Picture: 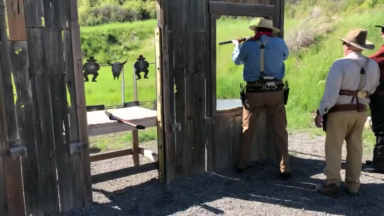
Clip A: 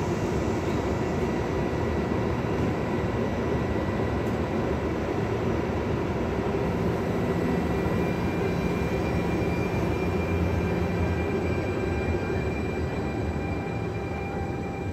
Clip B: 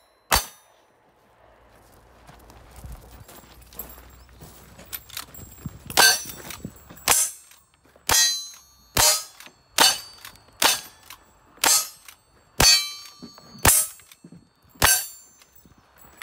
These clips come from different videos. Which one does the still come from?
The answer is B